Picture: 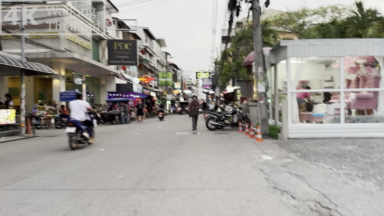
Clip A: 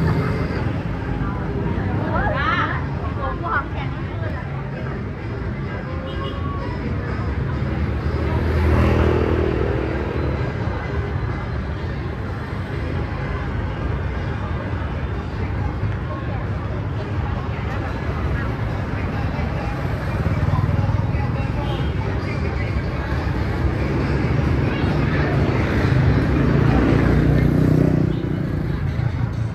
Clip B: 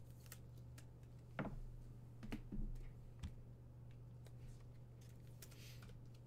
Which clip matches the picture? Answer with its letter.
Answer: A